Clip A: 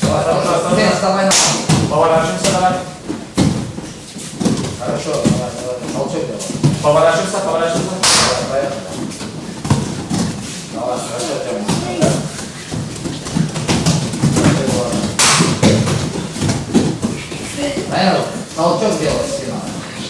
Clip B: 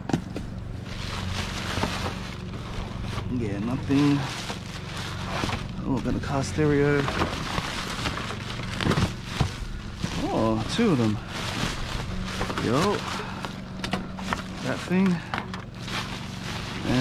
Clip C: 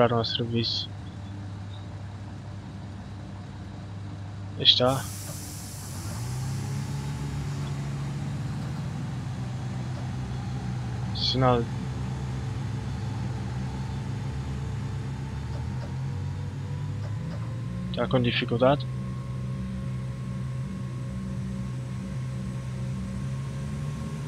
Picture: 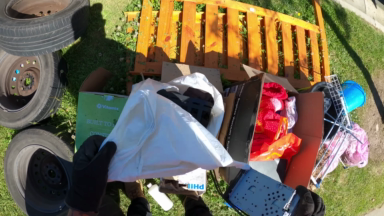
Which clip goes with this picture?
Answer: B